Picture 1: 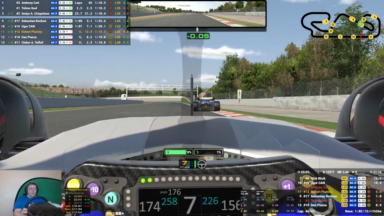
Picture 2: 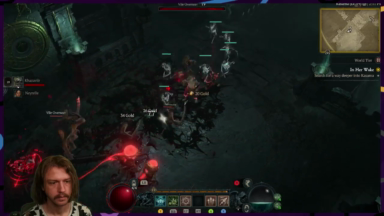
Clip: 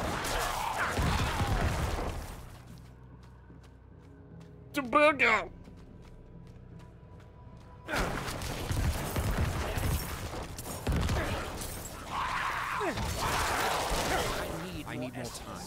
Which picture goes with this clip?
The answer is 2